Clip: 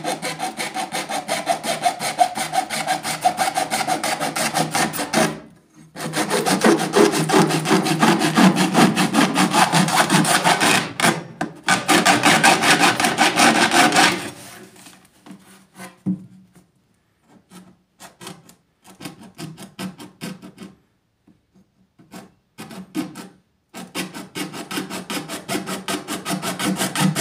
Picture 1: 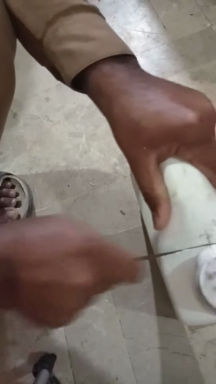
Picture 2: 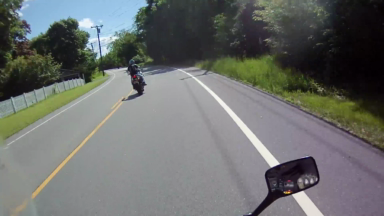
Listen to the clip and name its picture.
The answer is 1